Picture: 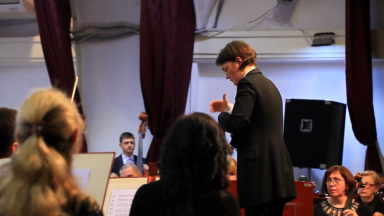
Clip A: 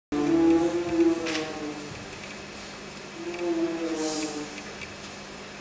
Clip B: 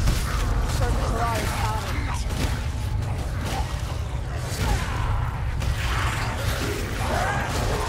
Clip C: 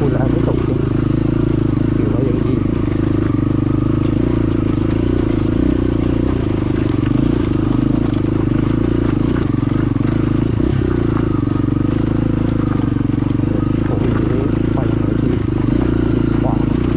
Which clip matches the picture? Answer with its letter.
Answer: A